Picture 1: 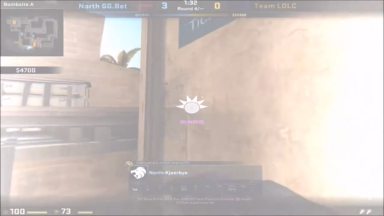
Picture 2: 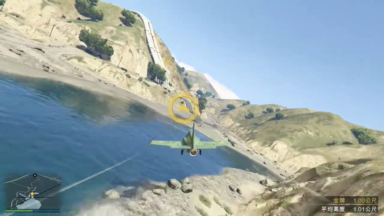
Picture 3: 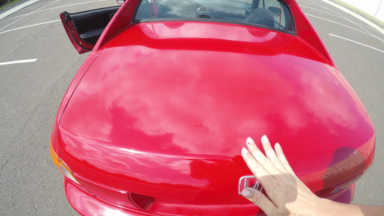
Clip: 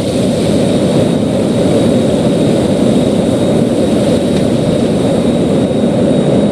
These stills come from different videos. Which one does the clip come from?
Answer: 2